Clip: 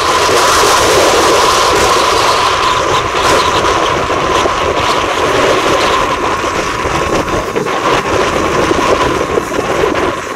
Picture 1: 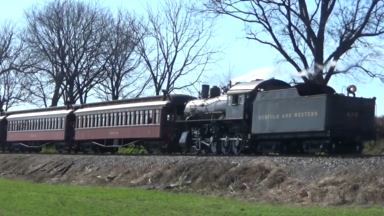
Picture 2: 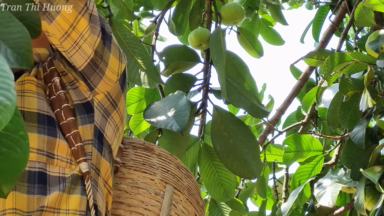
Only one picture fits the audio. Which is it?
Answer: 1